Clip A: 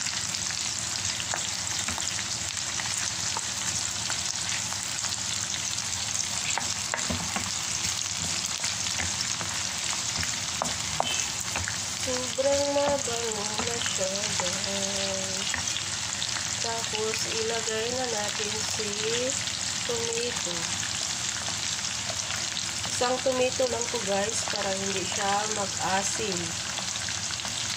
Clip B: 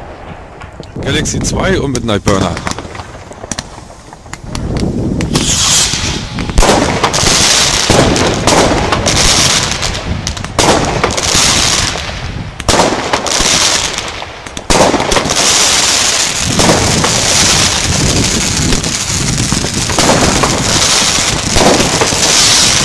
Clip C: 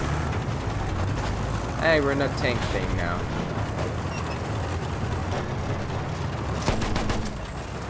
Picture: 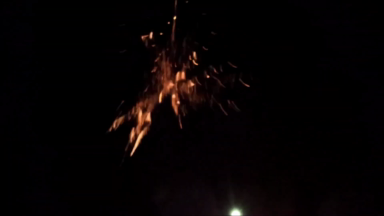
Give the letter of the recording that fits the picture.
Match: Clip B